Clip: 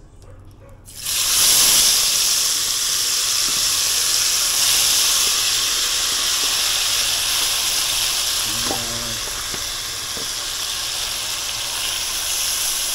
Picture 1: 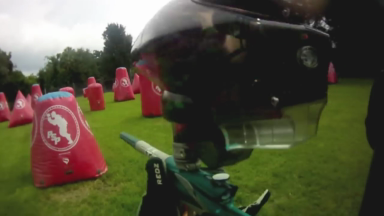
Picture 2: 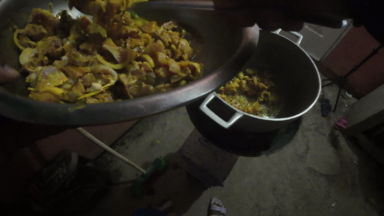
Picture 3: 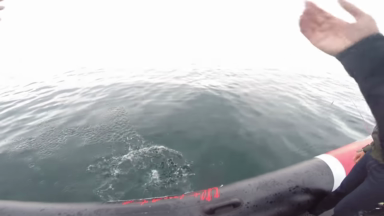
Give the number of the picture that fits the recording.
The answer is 2